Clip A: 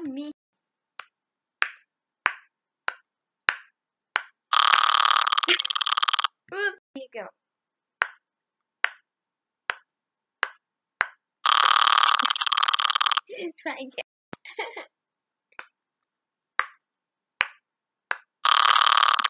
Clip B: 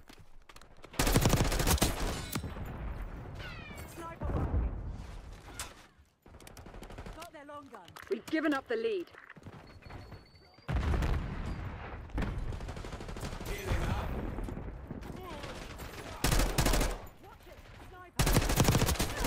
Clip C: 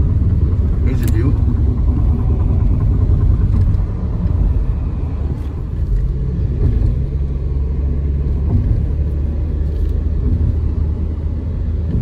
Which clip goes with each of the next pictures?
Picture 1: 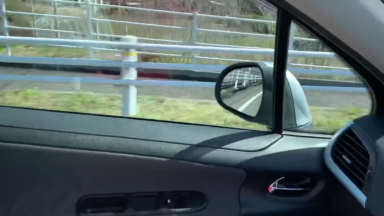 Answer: C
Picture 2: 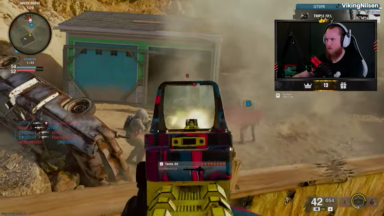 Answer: B